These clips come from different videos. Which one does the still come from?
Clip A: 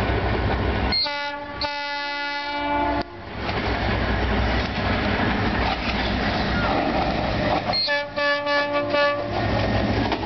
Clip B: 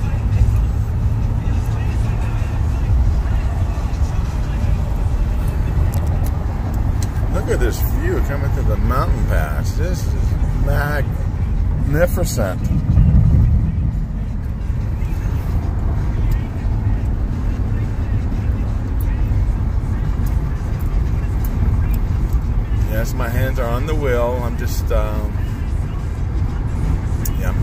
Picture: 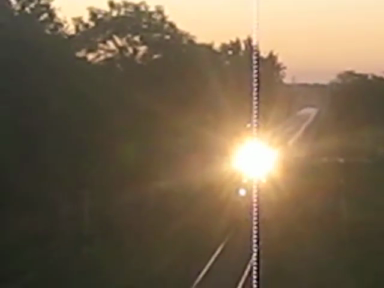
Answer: A